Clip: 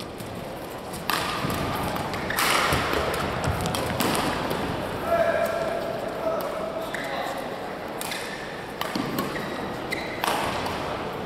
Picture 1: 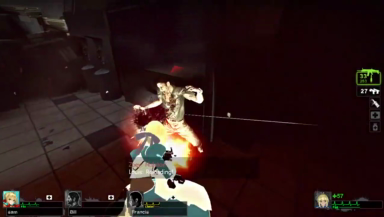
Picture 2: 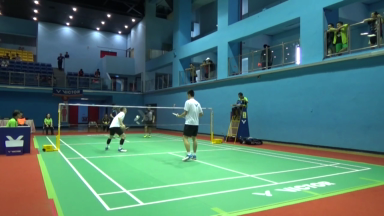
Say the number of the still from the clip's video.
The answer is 2